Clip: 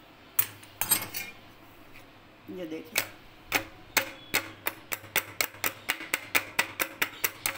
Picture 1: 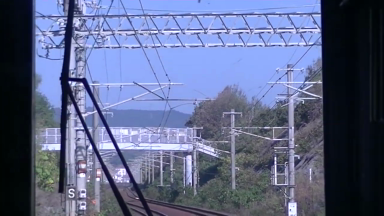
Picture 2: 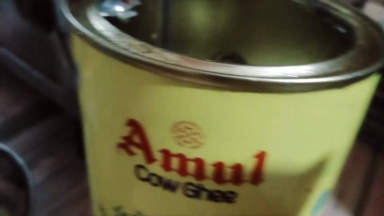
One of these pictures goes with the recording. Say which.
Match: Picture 2